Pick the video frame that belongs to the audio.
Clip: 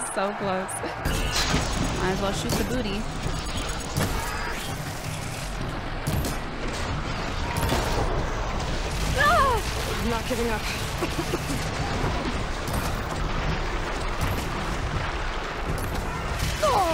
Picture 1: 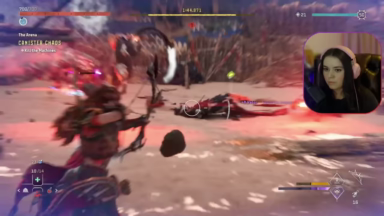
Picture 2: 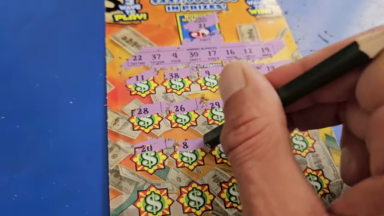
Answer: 1